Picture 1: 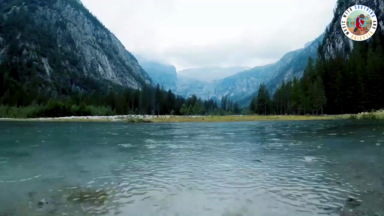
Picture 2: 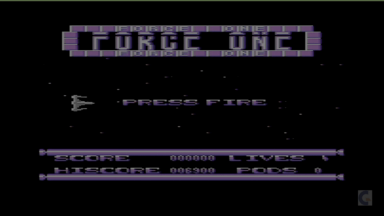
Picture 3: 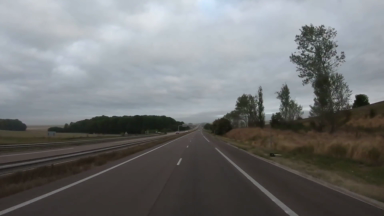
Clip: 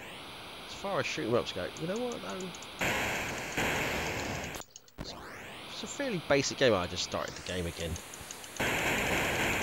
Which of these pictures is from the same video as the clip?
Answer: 2